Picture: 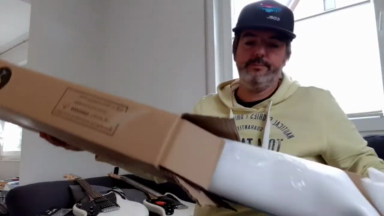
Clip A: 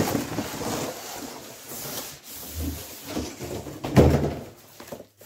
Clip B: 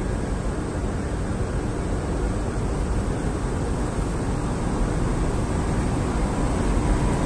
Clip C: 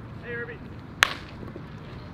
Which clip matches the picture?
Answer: A